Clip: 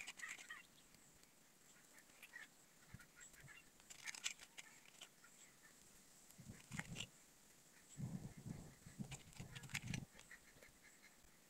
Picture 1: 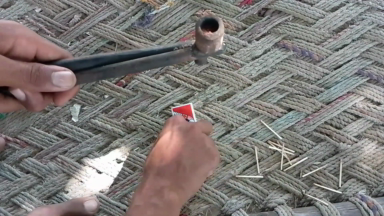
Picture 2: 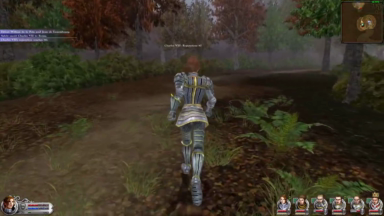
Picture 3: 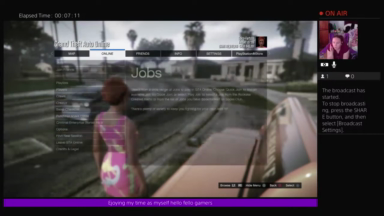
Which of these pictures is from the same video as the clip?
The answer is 1